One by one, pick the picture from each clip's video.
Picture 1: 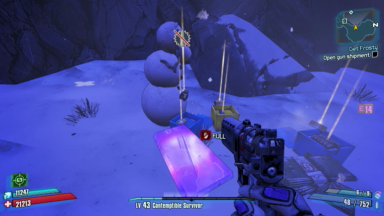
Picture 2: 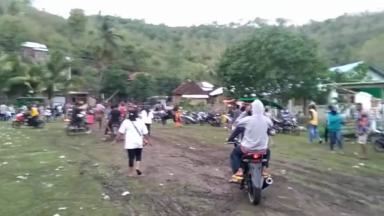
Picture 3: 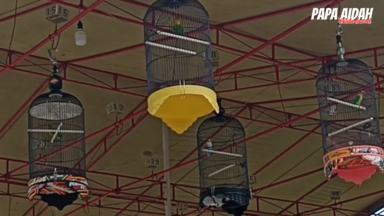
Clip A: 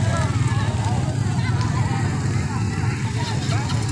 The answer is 2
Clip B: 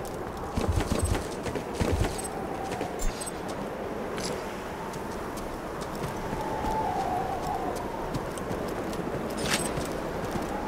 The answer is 1